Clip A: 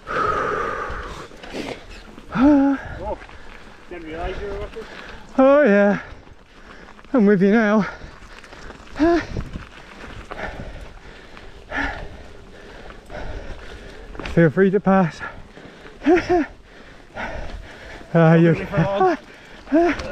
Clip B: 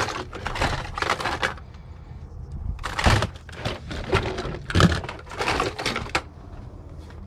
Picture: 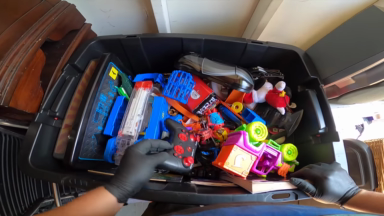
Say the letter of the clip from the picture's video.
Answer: B